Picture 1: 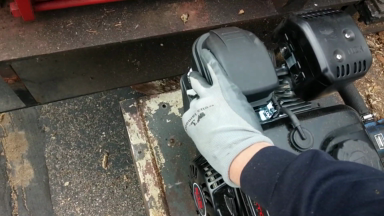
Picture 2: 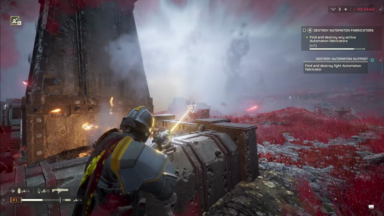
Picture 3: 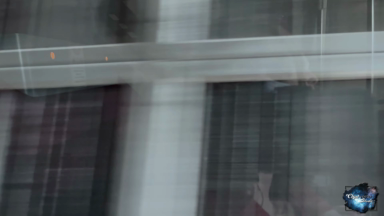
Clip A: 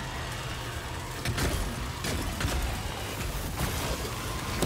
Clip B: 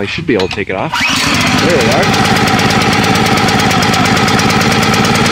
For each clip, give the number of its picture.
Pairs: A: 2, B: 1